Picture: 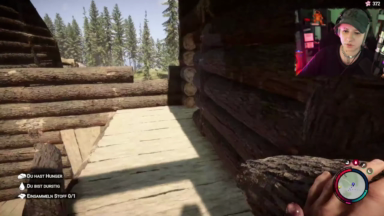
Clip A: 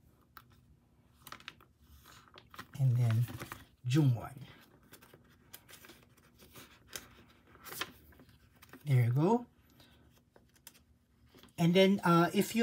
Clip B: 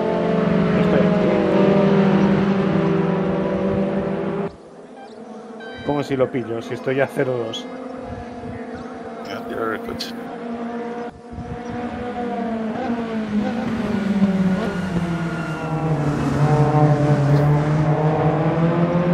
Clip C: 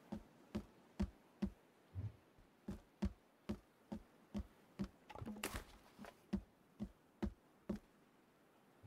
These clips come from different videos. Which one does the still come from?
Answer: C